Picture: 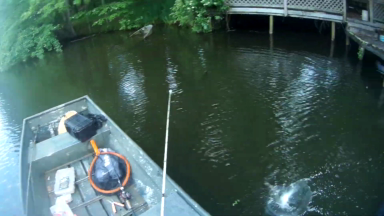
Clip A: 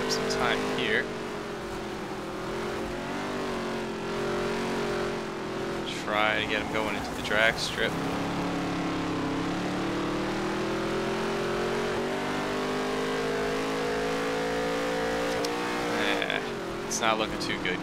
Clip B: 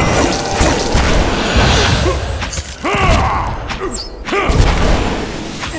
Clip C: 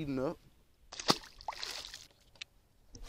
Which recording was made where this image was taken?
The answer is C